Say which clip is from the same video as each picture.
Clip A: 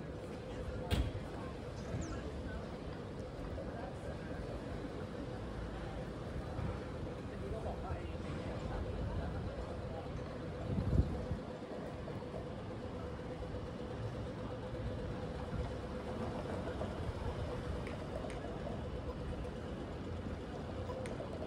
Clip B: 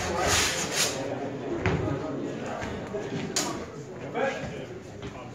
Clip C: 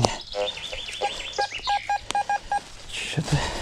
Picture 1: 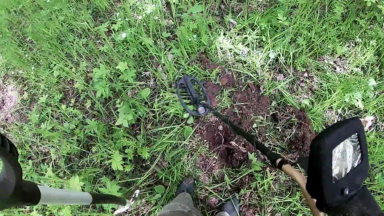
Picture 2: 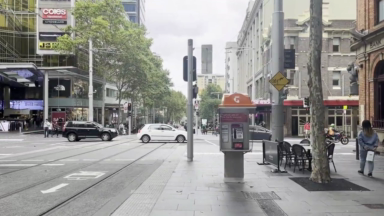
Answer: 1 C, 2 A